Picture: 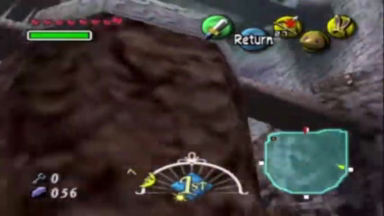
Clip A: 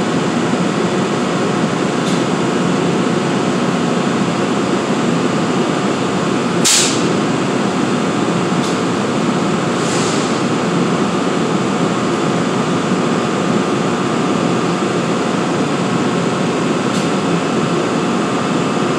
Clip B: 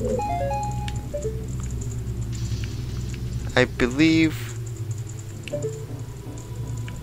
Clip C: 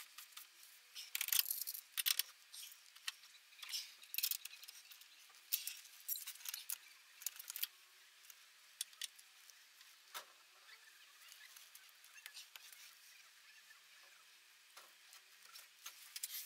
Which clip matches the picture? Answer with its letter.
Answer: B